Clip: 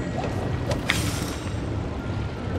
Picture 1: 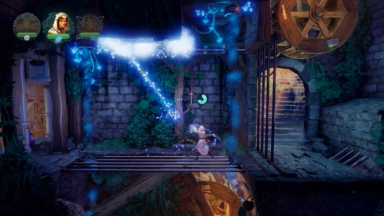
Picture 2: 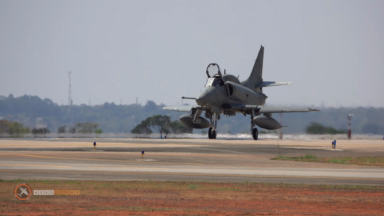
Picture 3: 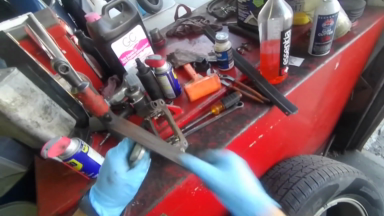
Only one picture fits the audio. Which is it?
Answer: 1